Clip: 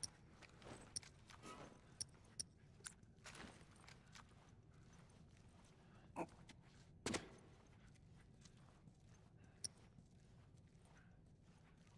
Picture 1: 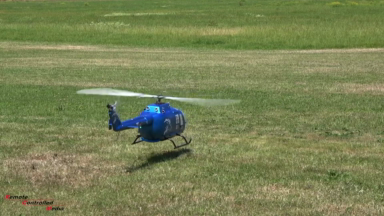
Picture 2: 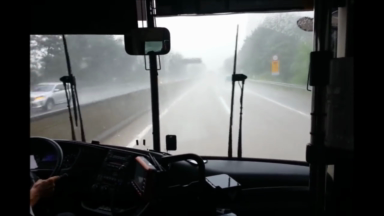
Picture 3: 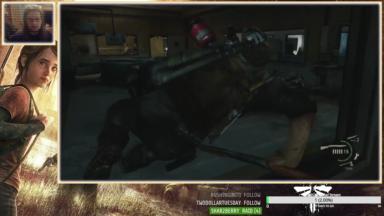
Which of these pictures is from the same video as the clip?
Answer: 3